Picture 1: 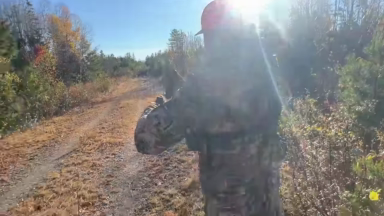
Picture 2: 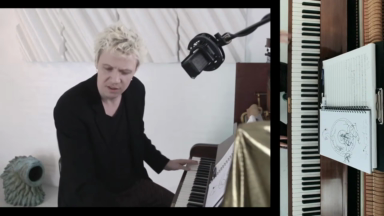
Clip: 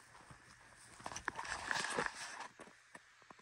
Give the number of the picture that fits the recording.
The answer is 1